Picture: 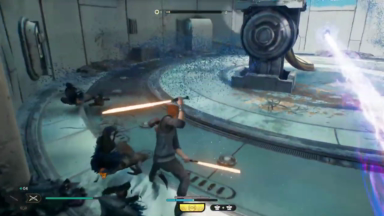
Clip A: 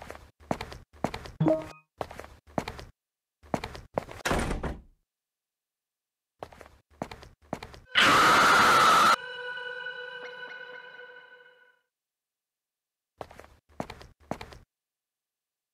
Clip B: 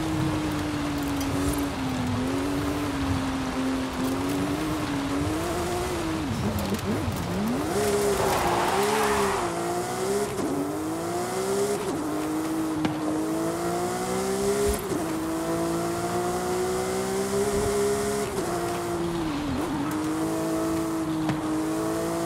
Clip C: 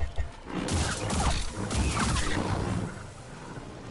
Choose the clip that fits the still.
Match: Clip C